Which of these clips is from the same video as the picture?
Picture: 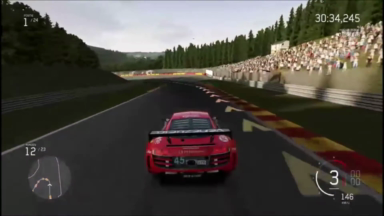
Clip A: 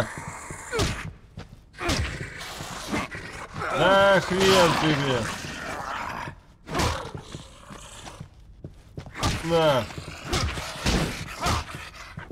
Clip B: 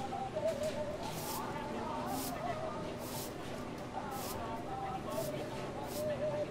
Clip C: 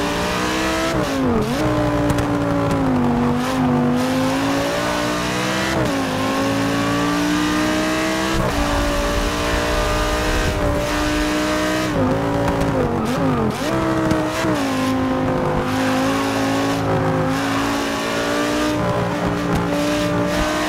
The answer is C